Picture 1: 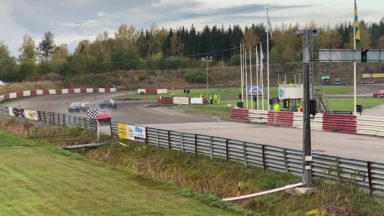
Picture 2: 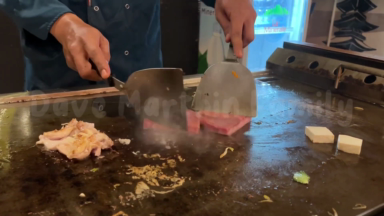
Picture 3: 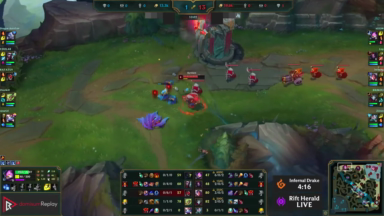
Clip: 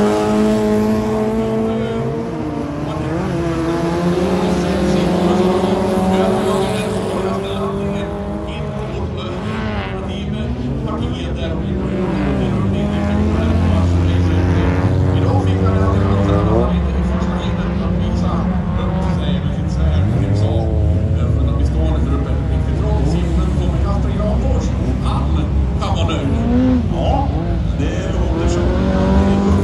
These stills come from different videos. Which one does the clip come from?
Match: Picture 1